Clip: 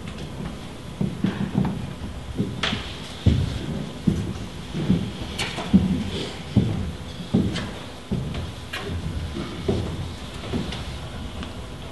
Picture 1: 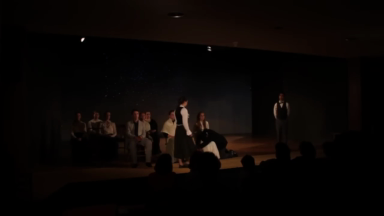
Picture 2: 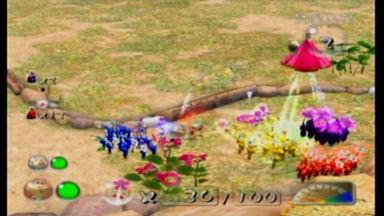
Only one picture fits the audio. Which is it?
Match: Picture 1